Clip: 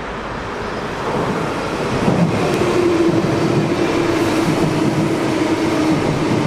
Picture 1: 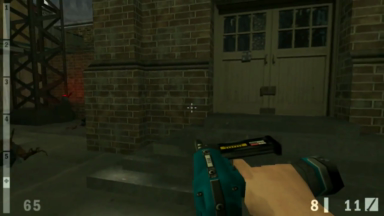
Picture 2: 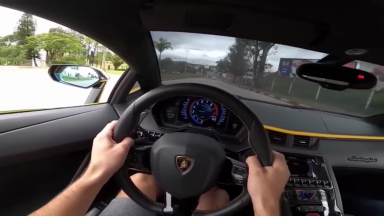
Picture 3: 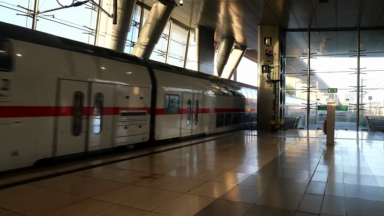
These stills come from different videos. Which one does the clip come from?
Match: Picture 3